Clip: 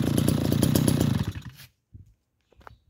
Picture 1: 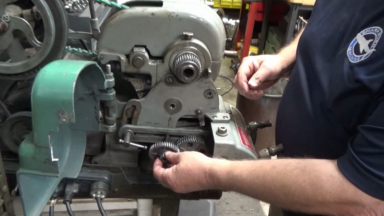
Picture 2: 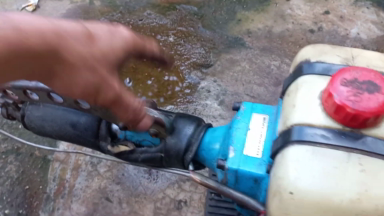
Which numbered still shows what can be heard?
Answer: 2